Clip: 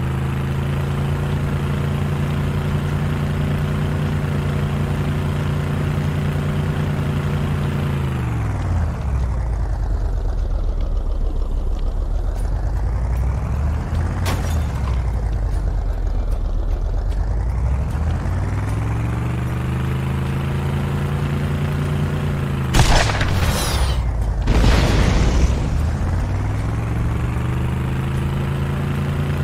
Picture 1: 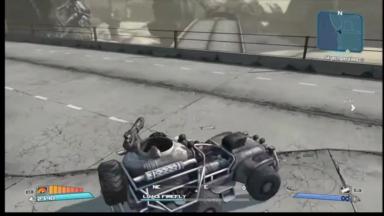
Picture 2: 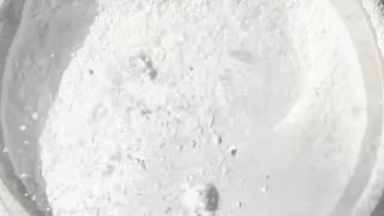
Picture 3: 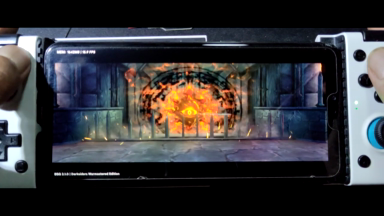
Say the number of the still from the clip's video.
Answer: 1